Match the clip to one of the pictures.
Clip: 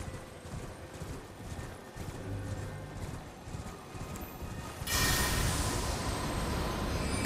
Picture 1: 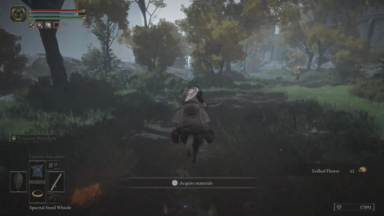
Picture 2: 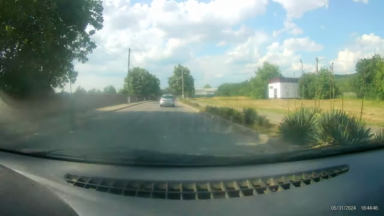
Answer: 1